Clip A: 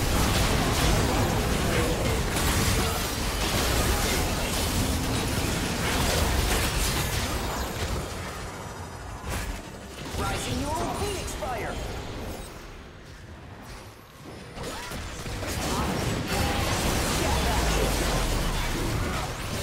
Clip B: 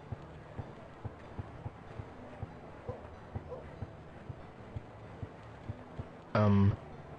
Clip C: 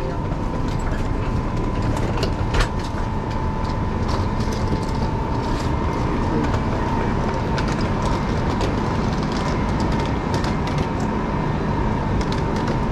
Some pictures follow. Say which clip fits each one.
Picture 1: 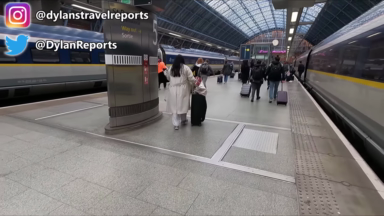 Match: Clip C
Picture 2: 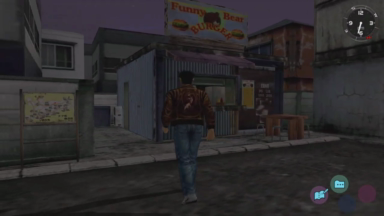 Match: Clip B